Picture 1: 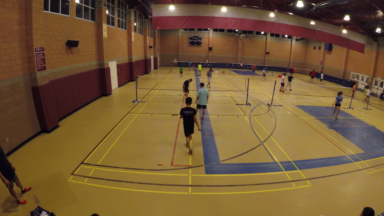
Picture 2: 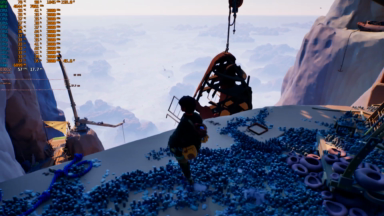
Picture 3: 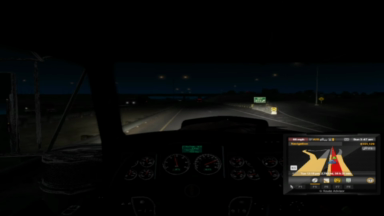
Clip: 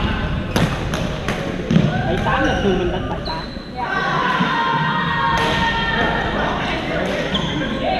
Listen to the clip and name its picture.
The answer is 1